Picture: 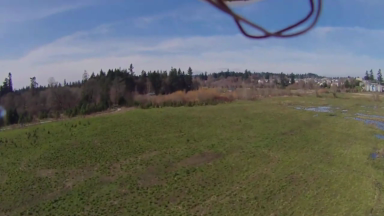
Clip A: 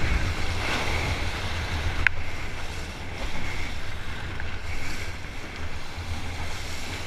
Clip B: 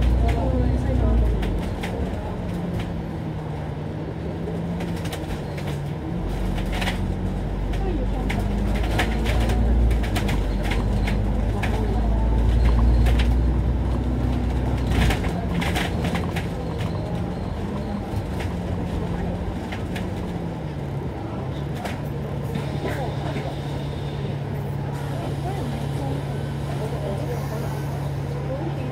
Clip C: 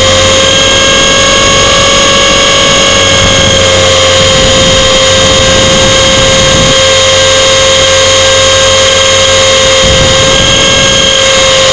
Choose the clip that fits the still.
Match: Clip C